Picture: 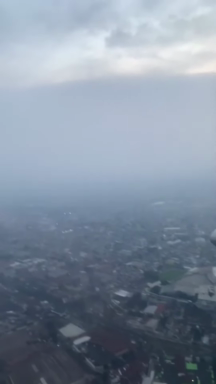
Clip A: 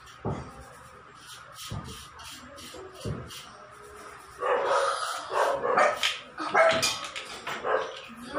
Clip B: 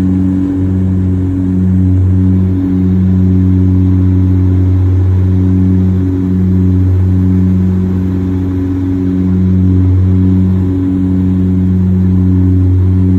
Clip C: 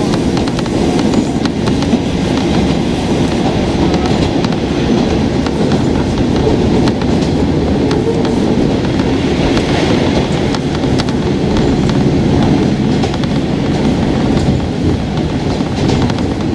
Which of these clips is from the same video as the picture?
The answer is B